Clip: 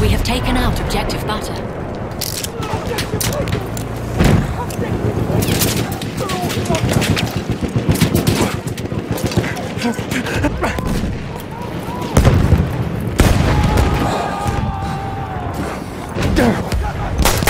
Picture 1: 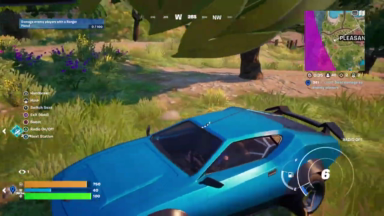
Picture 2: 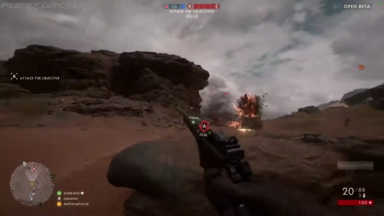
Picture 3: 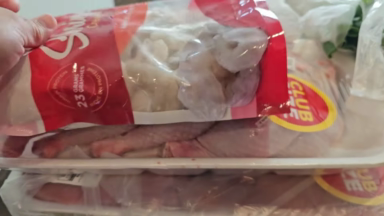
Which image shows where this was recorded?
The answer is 2